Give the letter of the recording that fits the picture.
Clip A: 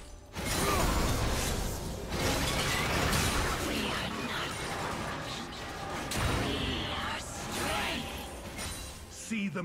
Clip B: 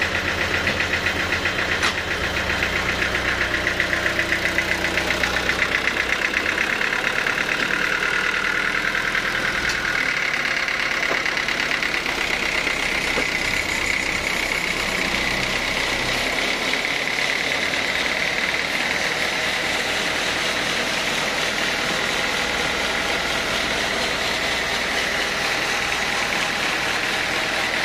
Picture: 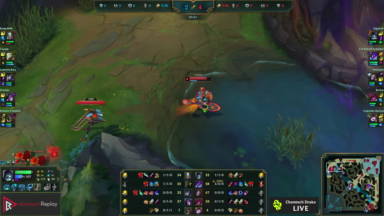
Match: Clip A